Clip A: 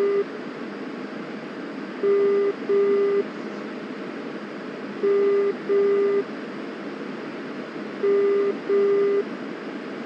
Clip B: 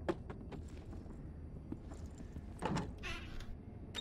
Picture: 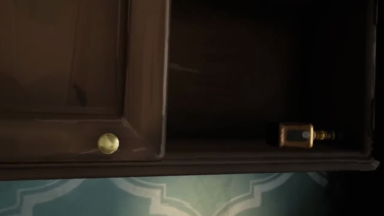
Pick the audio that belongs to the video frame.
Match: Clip B